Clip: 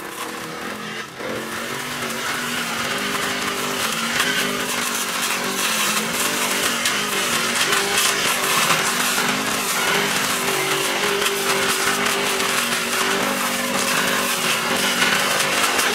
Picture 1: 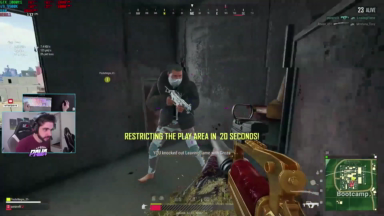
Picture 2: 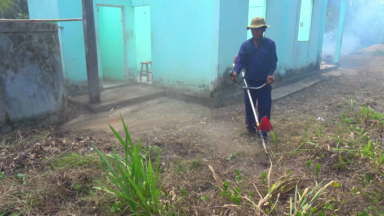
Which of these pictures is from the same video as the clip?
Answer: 2